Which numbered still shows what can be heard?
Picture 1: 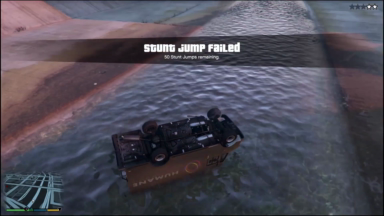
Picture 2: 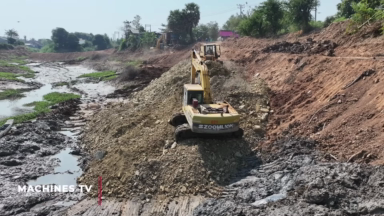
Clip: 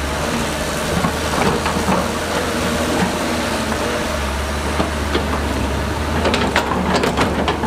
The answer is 2